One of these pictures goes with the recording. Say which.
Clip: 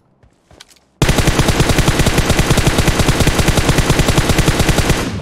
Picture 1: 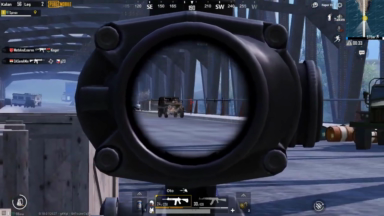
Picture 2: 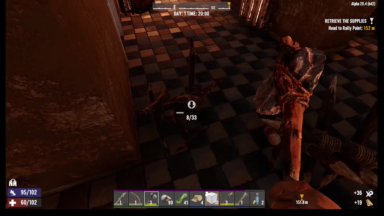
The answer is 1